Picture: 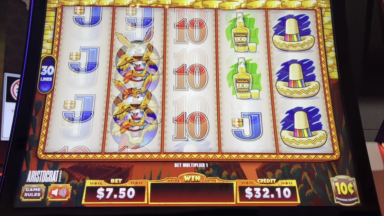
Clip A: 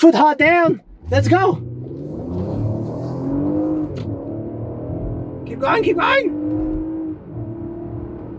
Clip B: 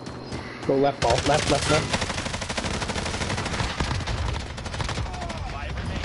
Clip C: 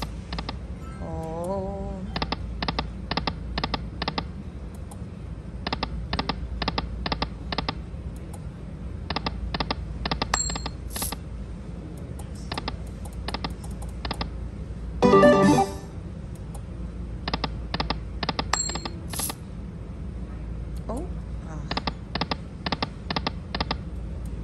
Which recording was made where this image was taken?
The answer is C